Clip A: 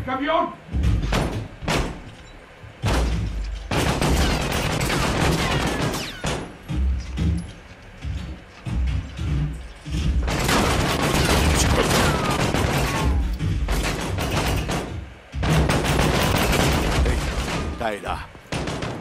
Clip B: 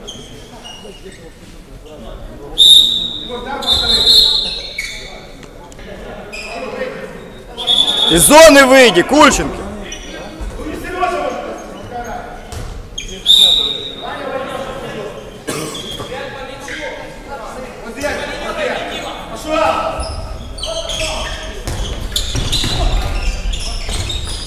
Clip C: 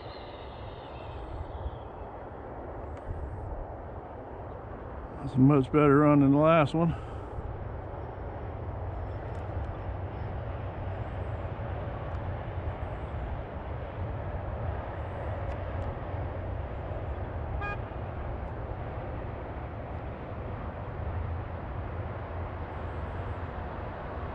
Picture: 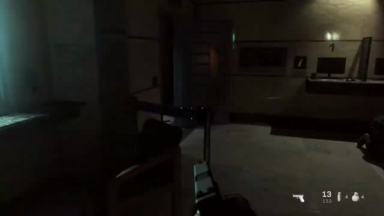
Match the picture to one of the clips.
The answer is A